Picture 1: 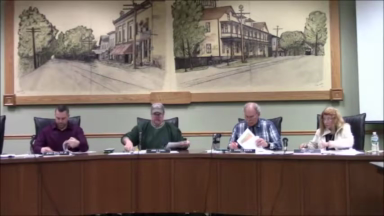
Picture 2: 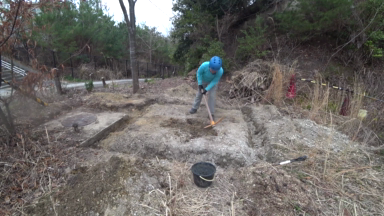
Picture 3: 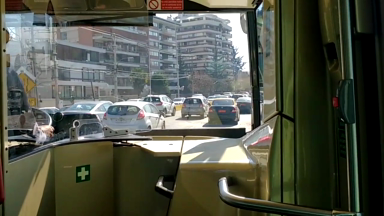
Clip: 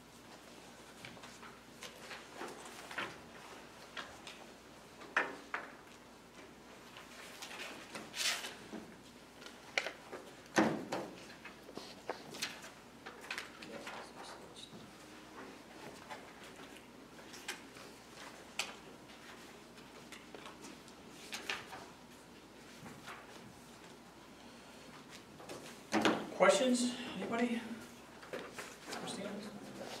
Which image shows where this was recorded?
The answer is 1